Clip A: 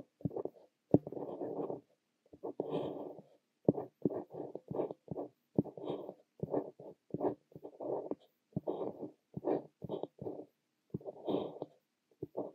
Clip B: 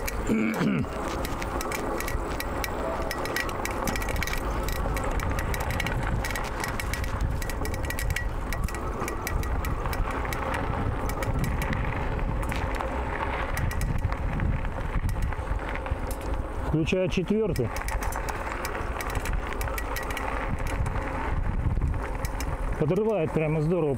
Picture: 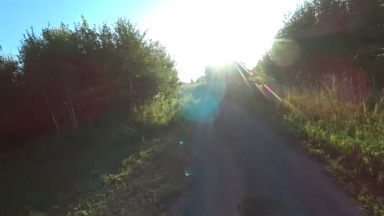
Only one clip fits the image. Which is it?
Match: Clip B